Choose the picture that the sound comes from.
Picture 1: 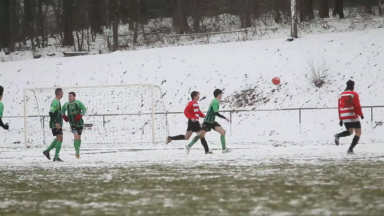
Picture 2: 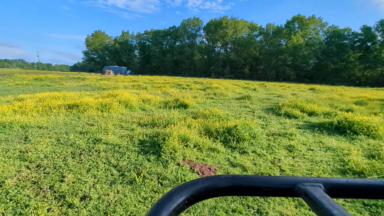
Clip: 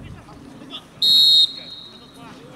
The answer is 1